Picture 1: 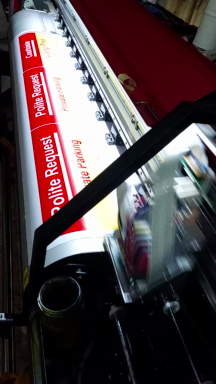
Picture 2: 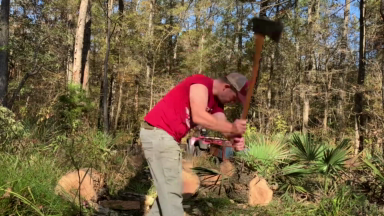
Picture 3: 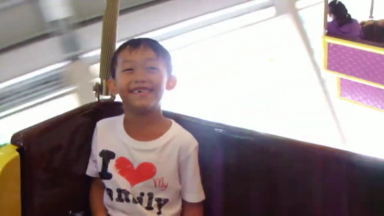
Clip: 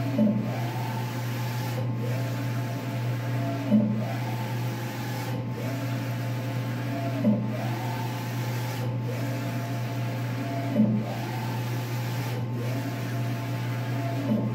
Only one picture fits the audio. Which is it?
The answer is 1